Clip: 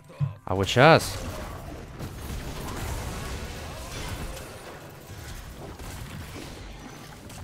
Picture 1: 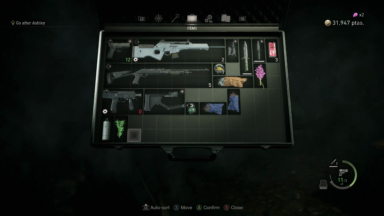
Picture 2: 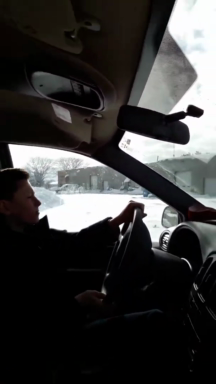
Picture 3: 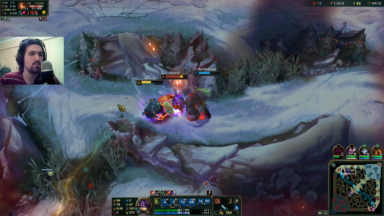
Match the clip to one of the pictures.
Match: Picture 3